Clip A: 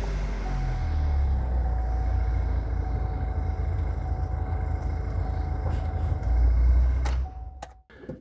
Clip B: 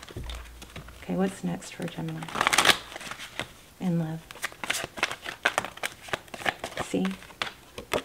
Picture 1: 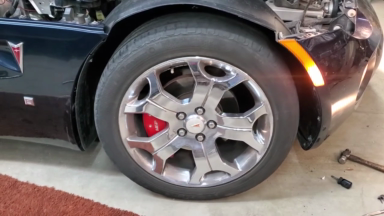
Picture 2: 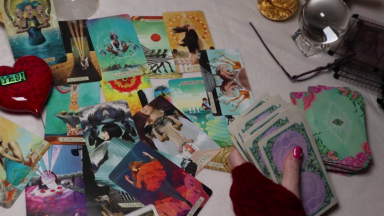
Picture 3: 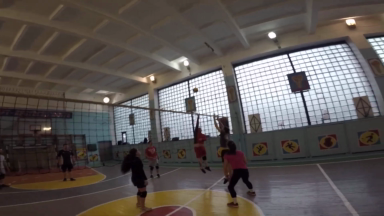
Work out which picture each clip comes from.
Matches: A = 1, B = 2